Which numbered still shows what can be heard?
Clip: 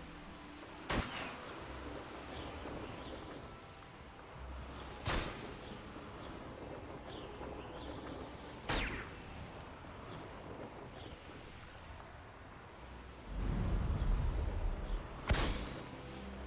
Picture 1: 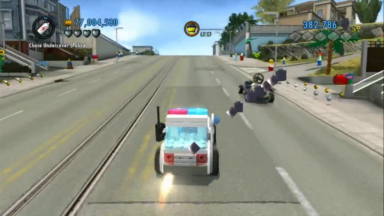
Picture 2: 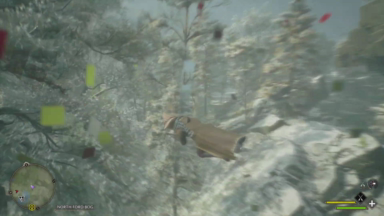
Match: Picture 2